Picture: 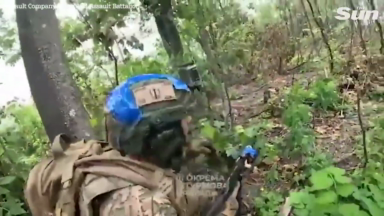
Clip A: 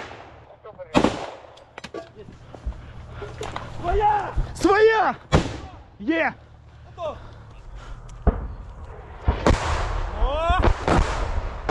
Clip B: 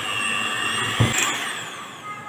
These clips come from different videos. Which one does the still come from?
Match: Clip A